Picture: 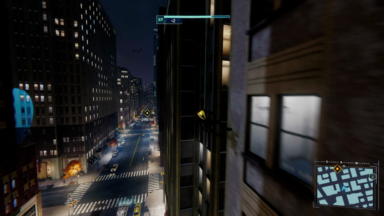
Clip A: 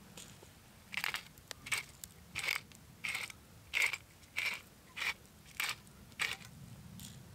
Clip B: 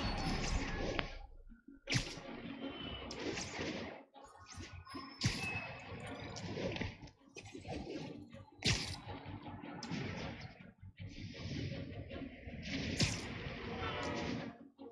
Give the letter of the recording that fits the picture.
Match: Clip B